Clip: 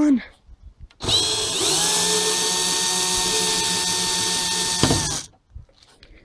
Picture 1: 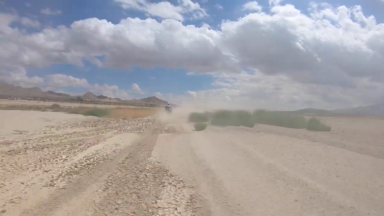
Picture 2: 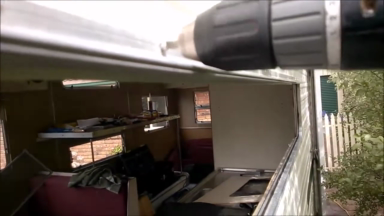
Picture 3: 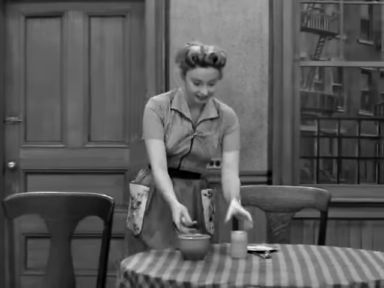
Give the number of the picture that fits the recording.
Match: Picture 2